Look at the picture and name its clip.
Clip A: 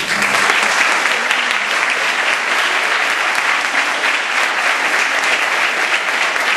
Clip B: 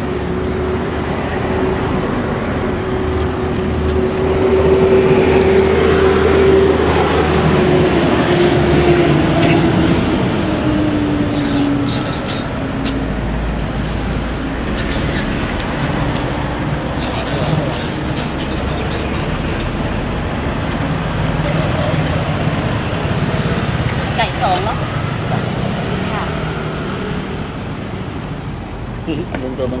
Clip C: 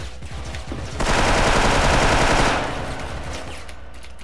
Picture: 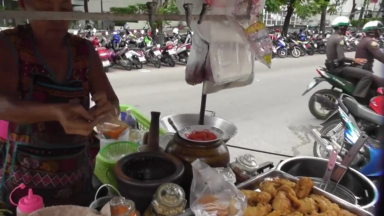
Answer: B